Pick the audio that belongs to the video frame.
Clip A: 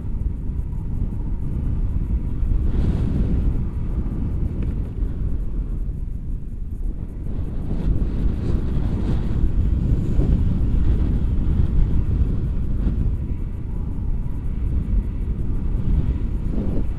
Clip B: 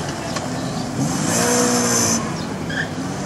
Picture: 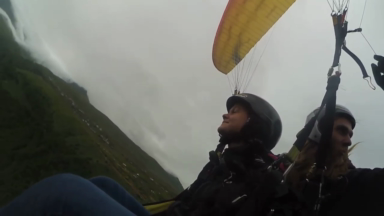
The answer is A